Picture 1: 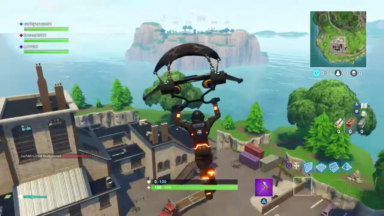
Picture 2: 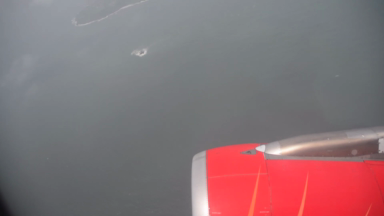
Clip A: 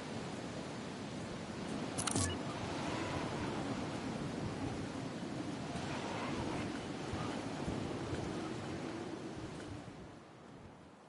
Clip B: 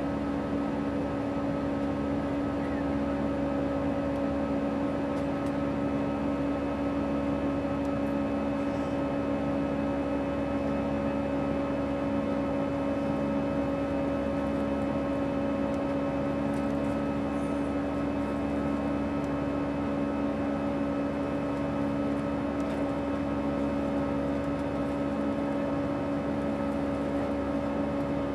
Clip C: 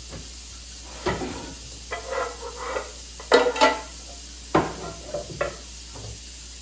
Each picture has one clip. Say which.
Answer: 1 A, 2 B